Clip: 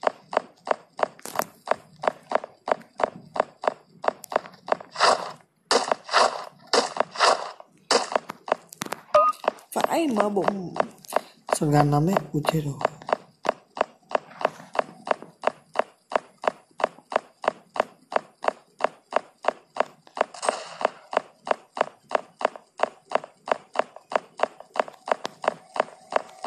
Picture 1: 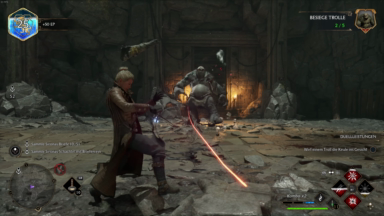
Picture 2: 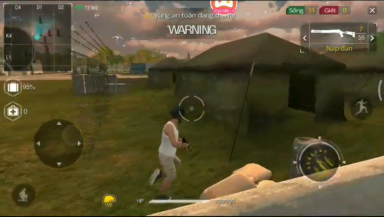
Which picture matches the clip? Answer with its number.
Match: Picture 2